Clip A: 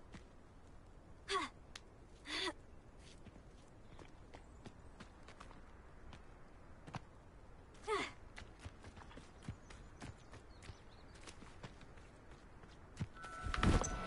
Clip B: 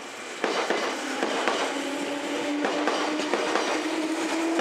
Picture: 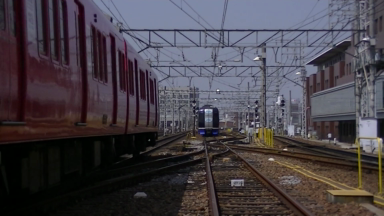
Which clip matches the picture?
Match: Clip B